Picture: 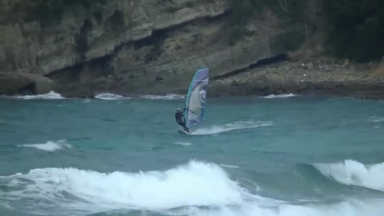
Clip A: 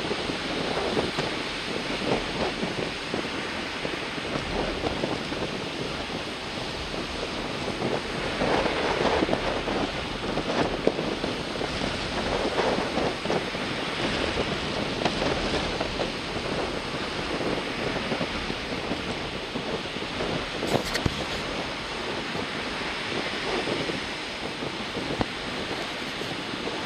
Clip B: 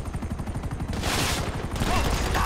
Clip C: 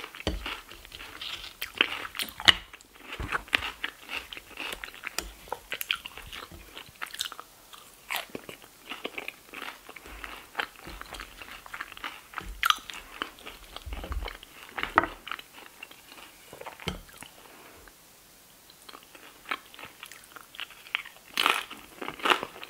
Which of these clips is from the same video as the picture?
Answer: A